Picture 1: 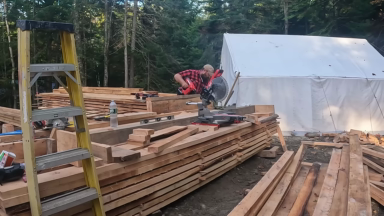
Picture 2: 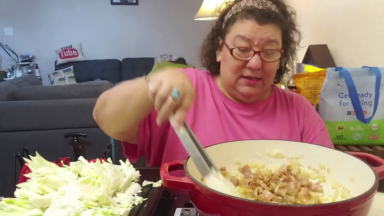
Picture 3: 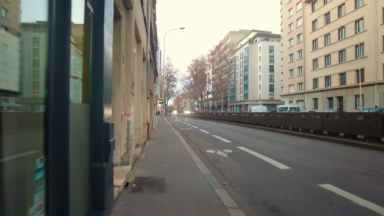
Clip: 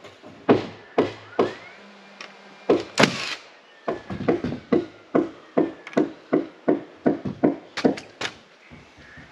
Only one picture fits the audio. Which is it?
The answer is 1